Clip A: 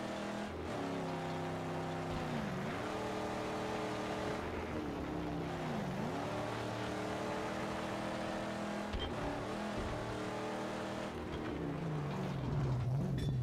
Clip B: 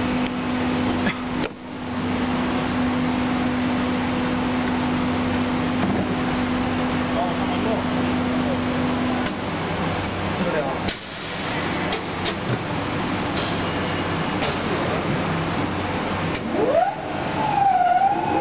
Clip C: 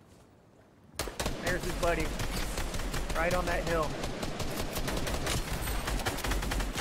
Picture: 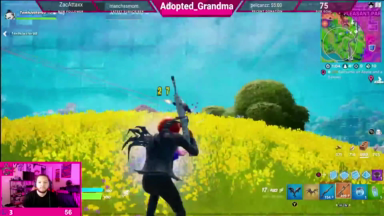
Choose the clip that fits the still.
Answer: C